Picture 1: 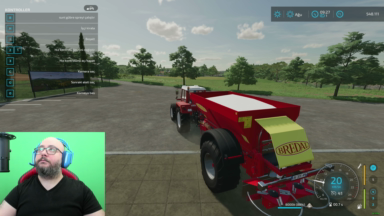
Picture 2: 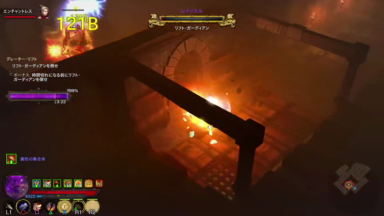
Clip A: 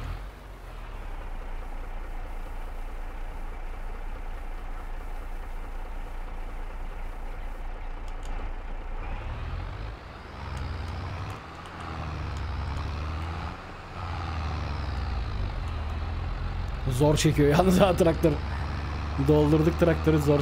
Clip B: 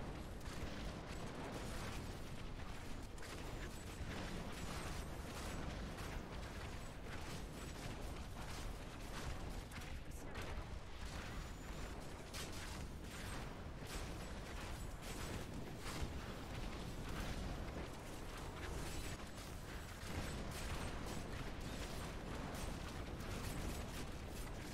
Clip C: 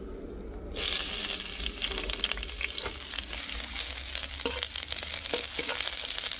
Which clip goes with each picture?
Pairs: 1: A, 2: B